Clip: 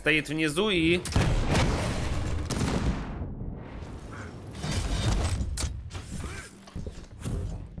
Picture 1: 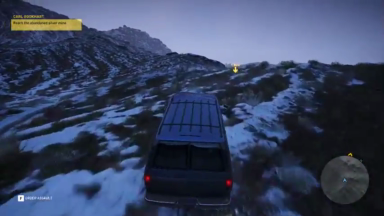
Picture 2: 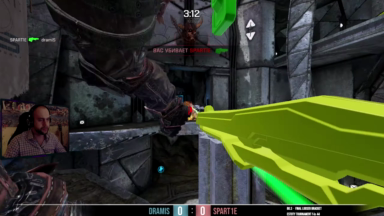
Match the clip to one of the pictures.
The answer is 2